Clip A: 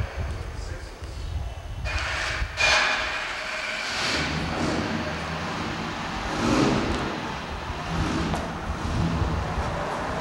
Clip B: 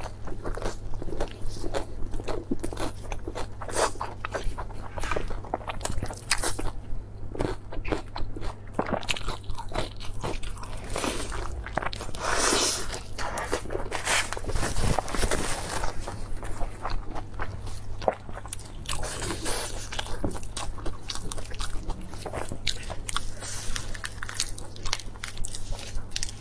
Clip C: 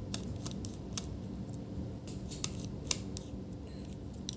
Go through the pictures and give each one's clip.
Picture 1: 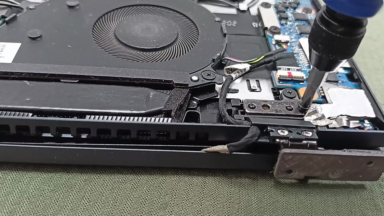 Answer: C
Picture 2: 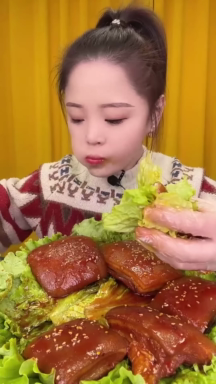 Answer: B